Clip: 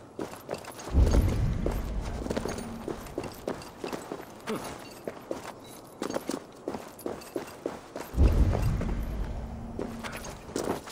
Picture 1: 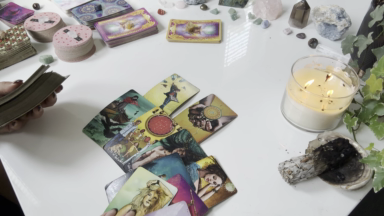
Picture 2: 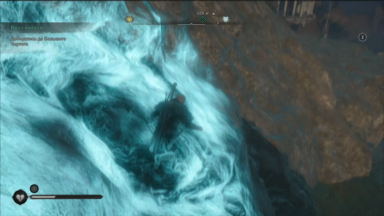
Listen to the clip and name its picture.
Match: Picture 2